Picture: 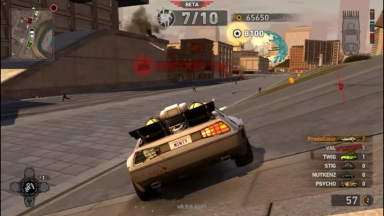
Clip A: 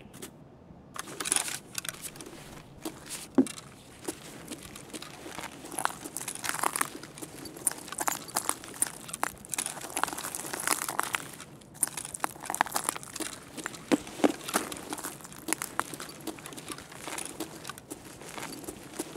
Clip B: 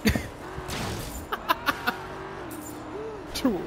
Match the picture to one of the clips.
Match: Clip B